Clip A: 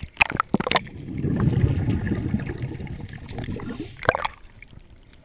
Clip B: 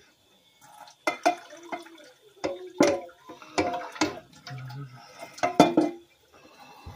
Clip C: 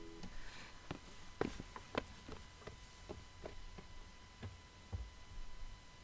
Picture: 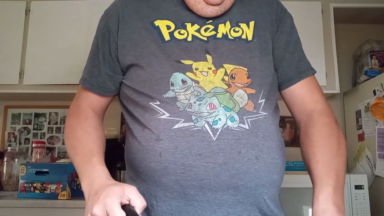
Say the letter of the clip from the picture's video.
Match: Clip B